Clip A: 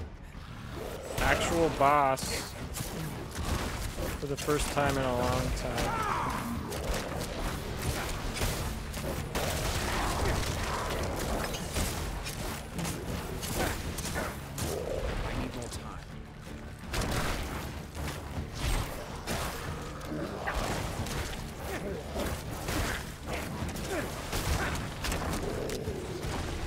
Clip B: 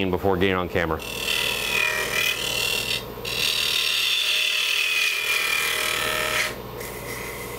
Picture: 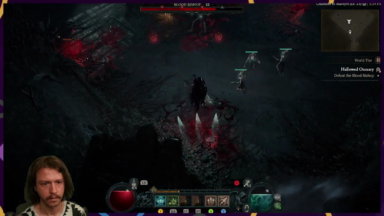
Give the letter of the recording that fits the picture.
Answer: A